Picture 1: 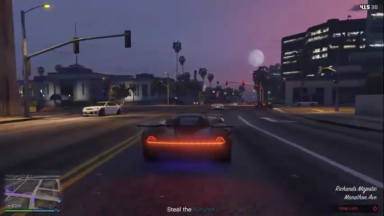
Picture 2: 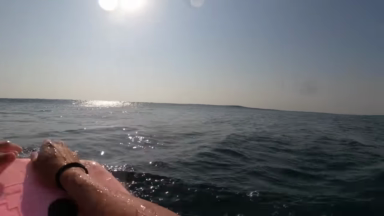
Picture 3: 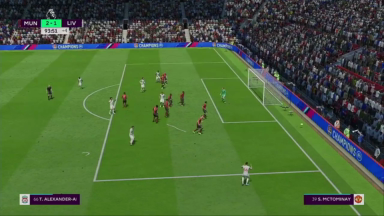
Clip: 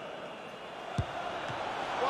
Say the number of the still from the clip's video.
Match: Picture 3